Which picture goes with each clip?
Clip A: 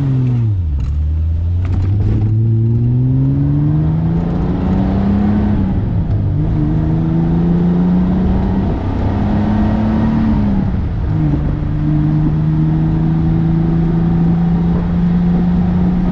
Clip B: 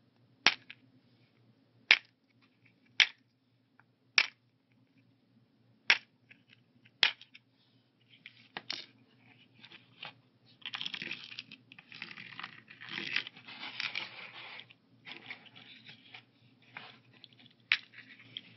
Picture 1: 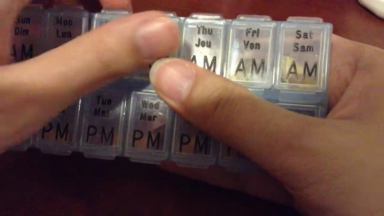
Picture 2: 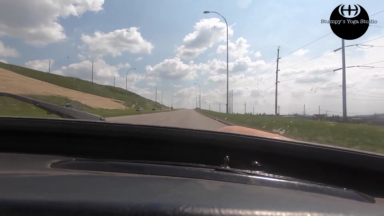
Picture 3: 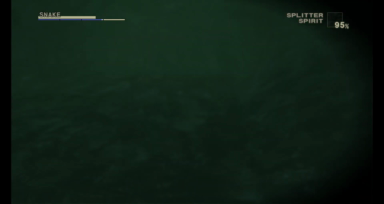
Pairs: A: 2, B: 1